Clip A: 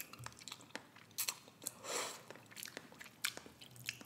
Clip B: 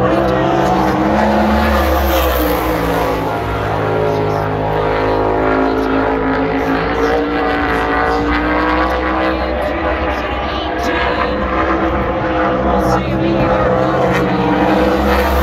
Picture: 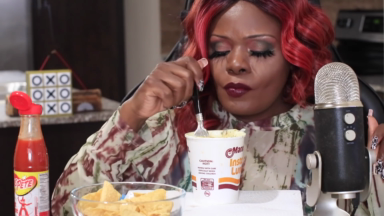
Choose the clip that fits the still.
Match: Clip A